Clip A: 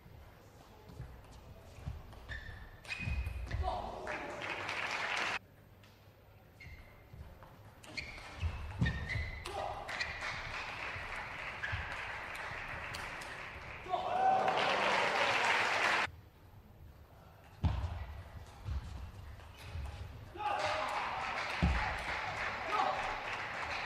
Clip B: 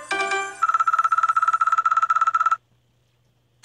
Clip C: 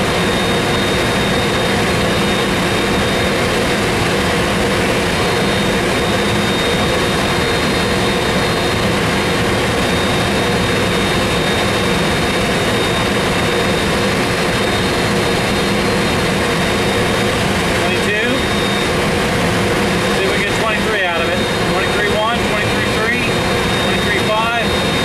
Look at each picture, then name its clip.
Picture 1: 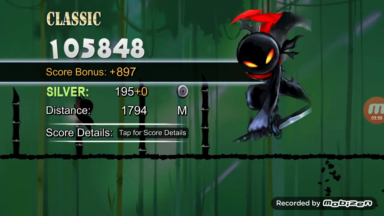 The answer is B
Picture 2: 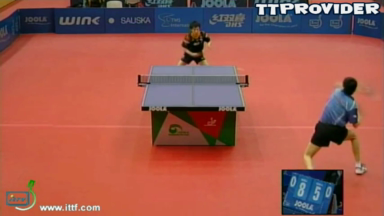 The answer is A